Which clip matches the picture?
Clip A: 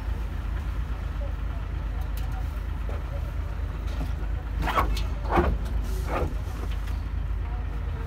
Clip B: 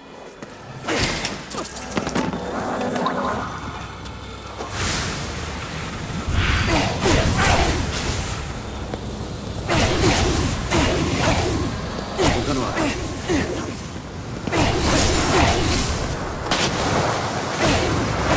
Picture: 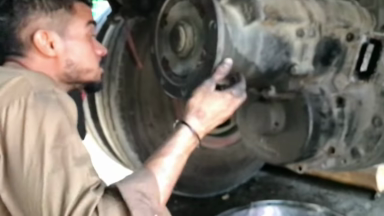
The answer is A